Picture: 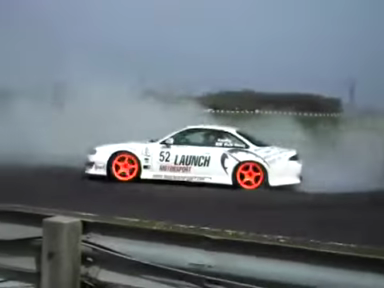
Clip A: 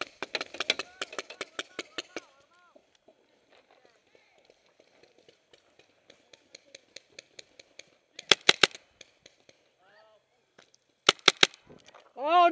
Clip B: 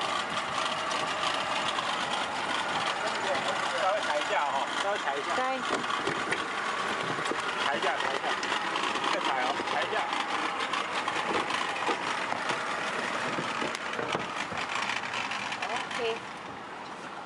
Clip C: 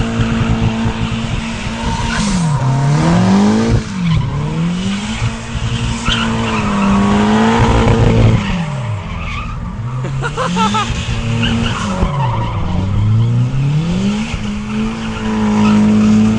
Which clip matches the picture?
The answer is C